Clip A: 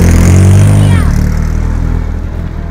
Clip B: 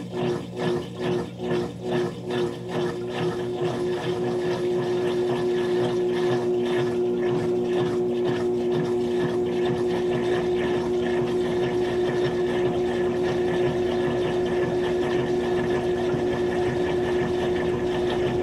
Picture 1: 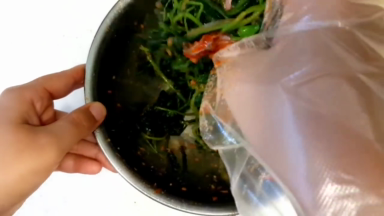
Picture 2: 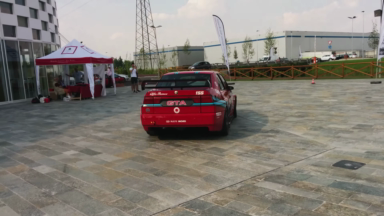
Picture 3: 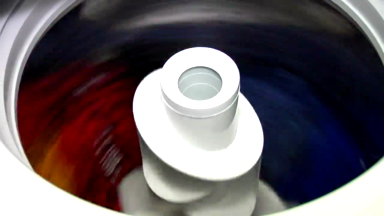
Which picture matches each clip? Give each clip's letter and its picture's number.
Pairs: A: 2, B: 3